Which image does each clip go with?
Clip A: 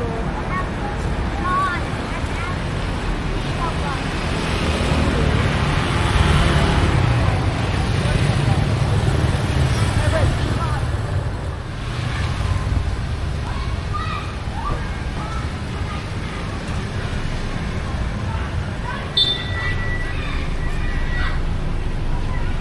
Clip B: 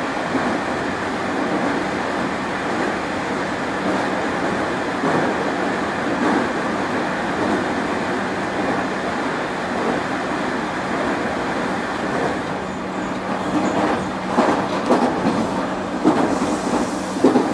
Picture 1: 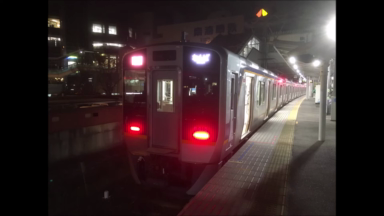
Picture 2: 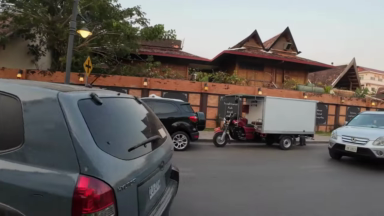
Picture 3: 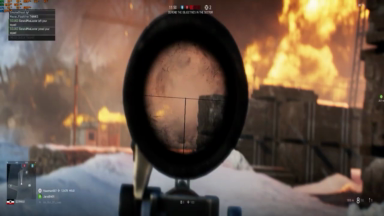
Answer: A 2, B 1